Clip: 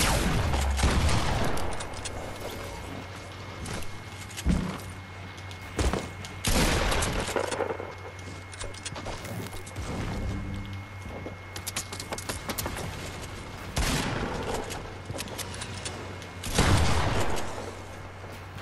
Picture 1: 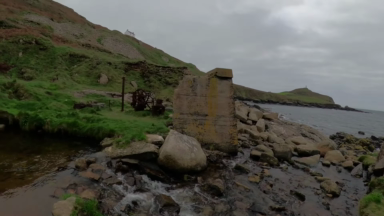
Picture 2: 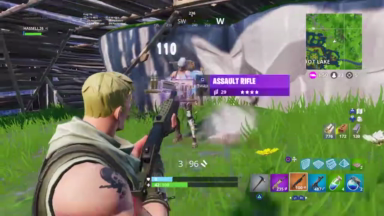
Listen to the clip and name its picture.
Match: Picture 2